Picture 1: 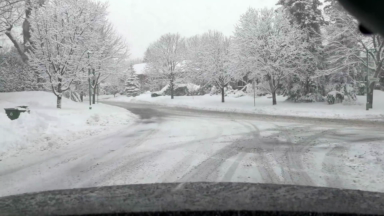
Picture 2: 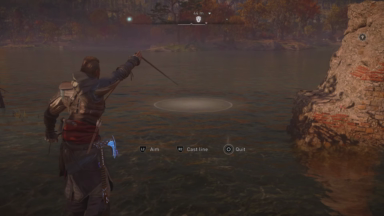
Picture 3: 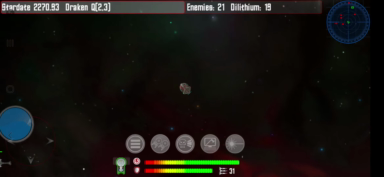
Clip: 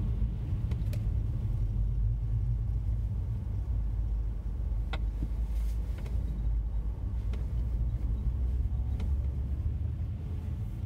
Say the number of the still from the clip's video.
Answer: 1